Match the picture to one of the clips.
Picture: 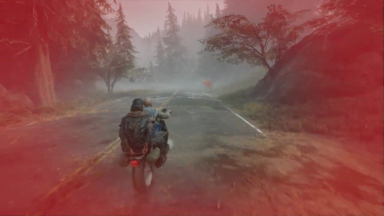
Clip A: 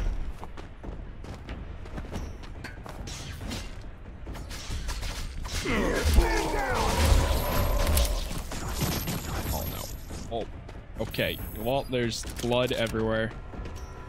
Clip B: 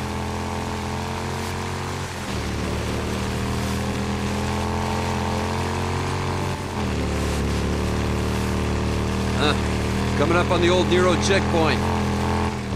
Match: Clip B